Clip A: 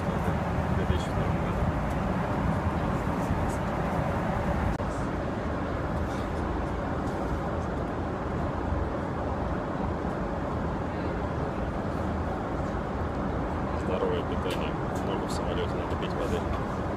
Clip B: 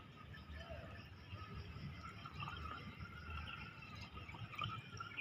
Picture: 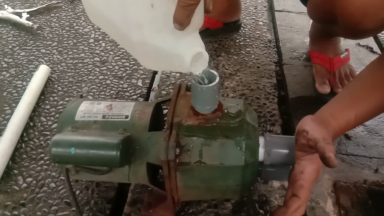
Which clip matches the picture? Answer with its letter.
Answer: B